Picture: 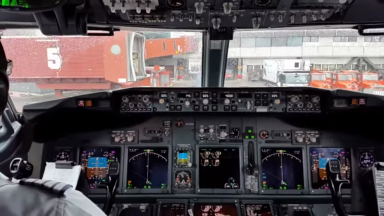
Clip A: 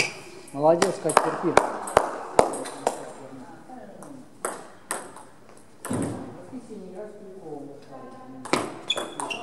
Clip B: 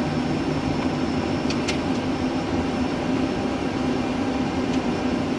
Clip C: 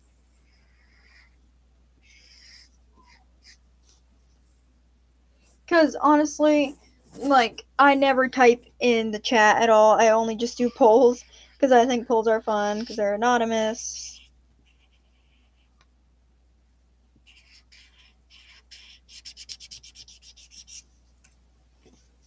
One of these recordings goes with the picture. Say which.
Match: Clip B